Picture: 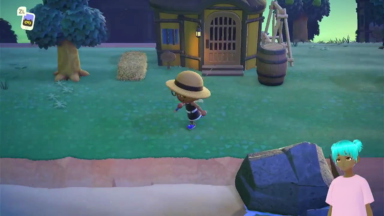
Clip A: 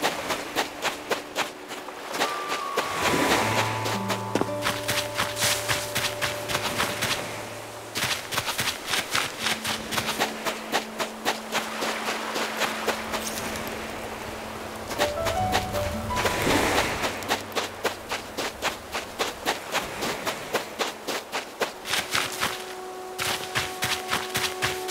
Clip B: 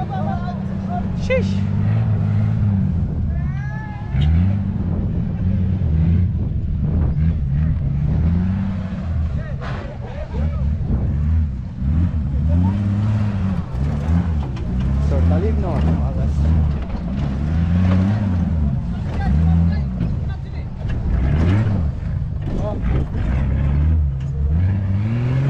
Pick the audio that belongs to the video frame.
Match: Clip A